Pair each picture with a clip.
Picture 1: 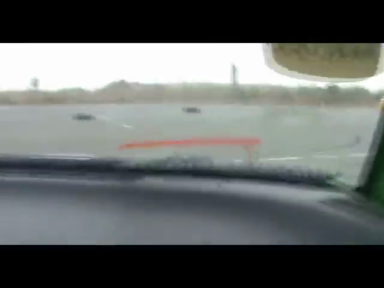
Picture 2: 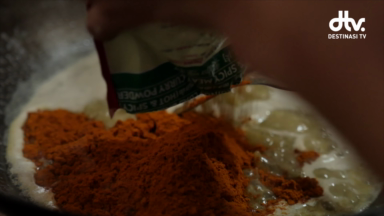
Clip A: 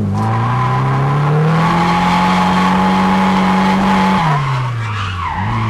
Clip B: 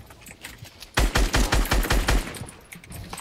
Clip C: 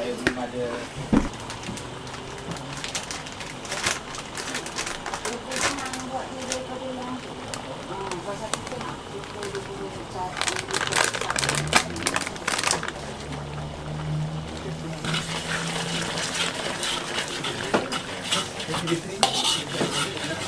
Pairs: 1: A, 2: C